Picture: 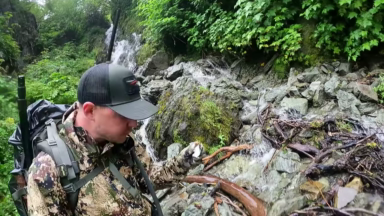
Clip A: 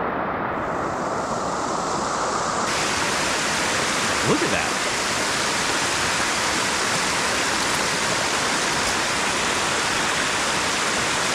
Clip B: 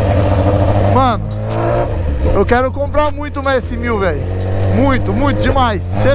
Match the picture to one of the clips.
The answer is A